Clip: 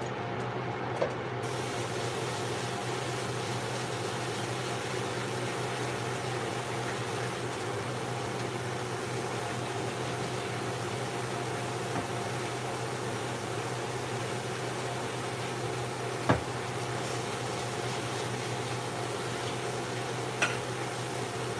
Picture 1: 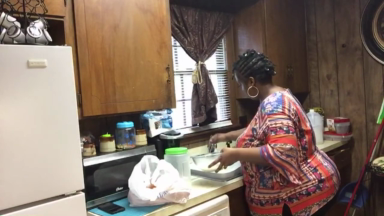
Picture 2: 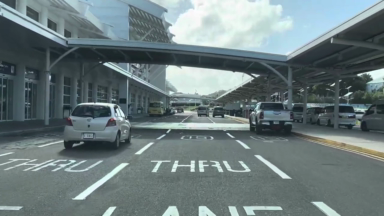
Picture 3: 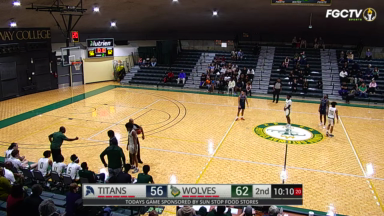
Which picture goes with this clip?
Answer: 1